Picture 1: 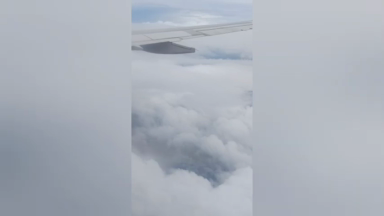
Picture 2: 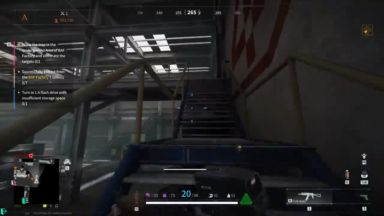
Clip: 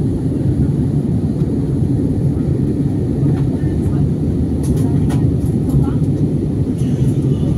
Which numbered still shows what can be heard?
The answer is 1